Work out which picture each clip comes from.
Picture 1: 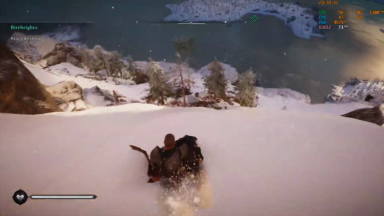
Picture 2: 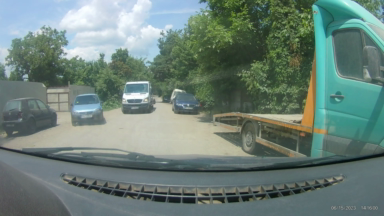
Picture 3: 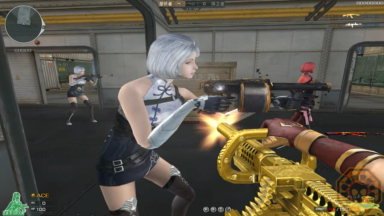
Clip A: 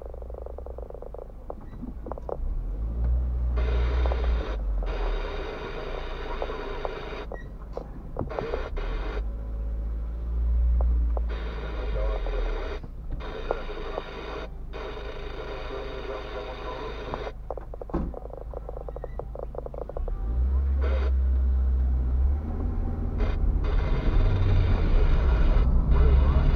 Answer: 2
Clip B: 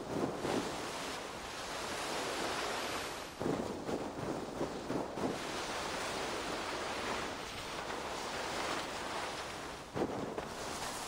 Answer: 1